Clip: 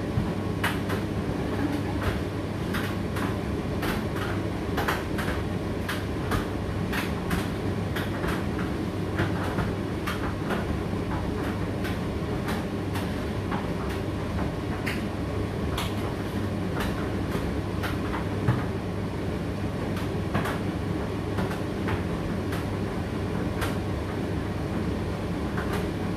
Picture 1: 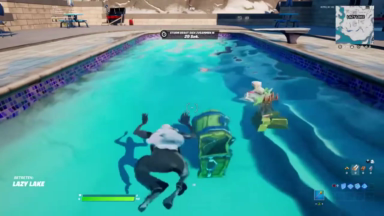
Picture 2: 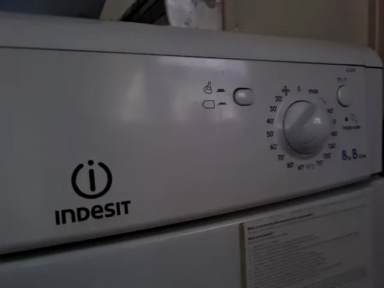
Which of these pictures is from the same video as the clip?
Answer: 2